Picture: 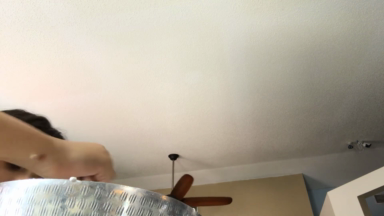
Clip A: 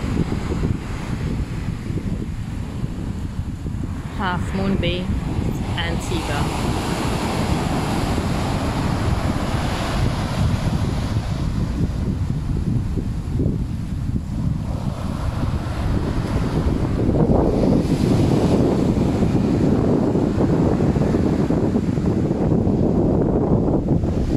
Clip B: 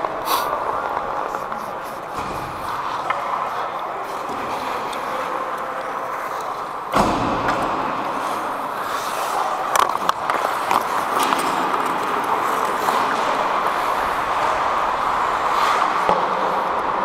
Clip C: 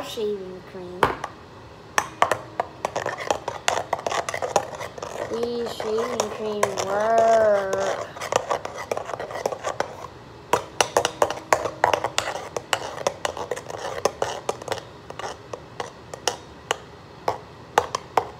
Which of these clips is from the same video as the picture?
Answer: C